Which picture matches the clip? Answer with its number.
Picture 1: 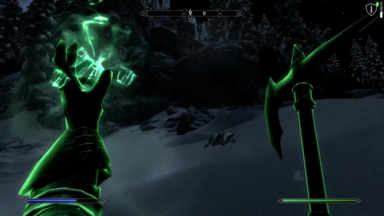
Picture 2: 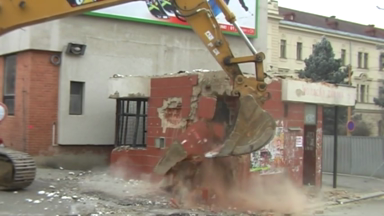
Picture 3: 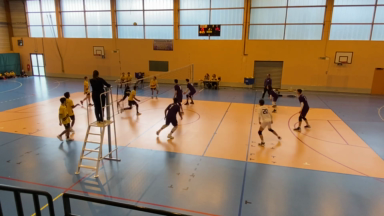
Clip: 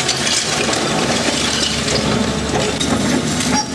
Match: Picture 2